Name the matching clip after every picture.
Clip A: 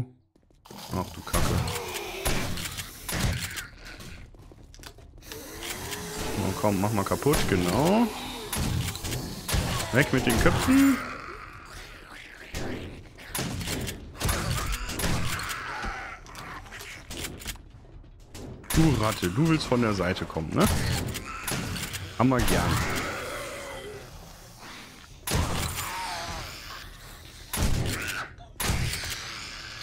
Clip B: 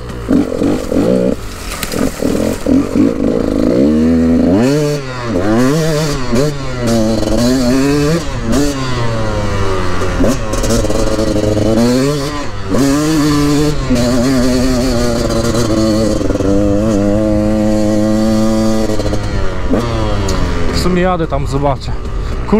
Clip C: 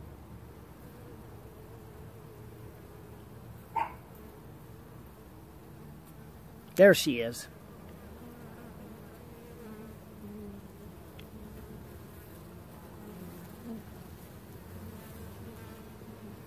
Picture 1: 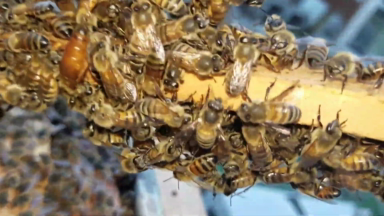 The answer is C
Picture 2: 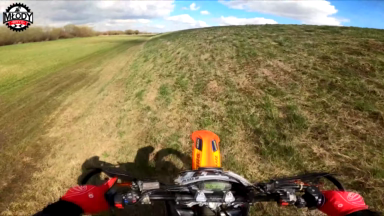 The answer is B